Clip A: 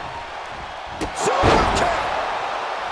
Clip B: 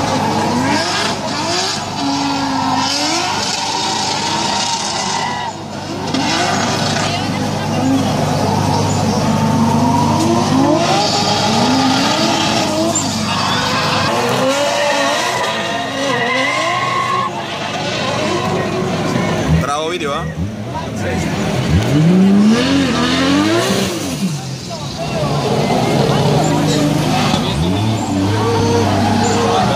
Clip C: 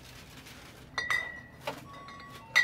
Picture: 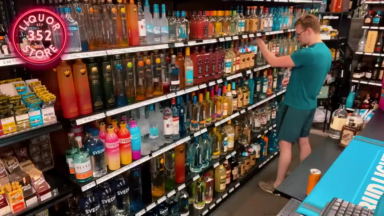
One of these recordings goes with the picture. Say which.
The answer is C